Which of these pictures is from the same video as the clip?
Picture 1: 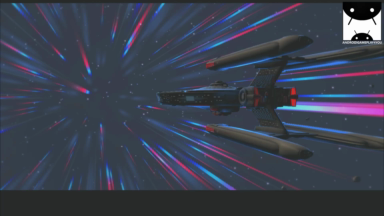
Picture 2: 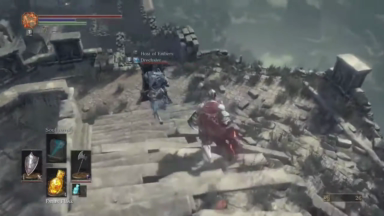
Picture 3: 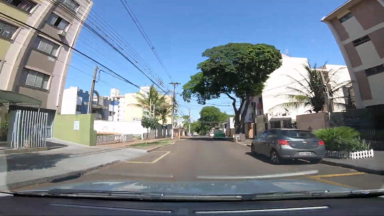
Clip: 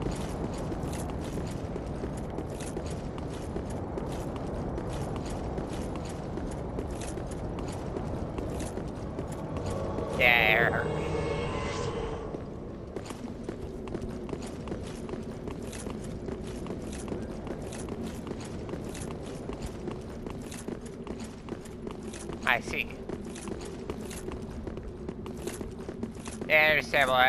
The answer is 2